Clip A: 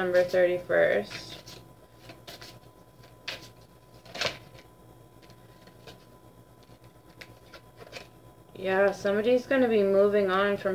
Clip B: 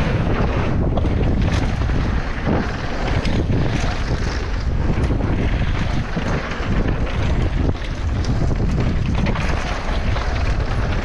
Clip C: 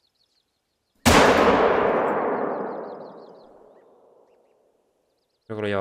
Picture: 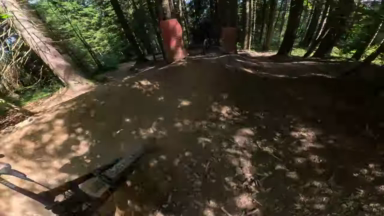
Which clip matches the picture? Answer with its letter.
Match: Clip B